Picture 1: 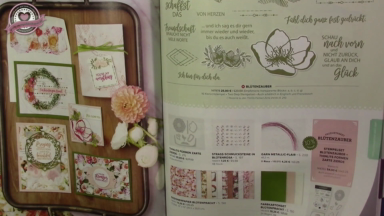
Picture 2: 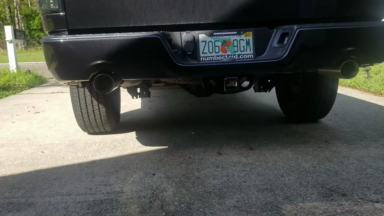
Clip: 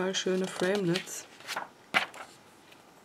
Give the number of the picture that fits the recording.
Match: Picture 1